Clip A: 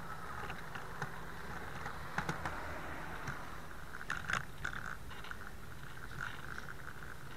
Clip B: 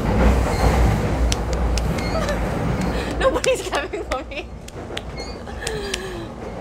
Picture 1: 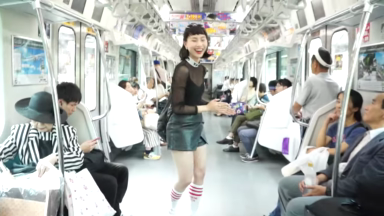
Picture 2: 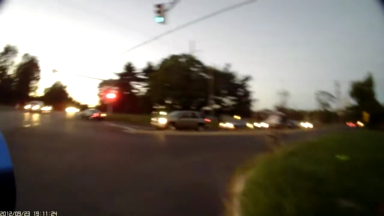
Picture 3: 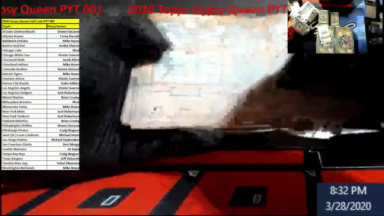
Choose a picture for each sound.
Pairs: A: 2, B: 1